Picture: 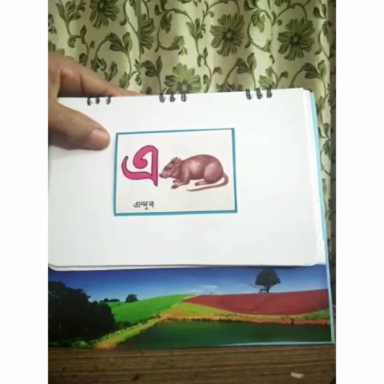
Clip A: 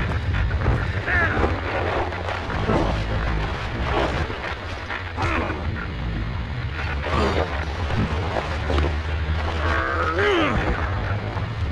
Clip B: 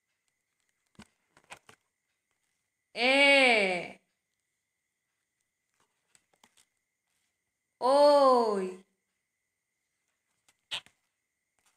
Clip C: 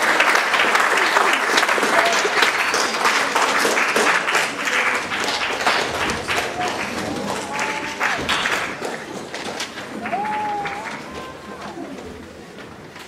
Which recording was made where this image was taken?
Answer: B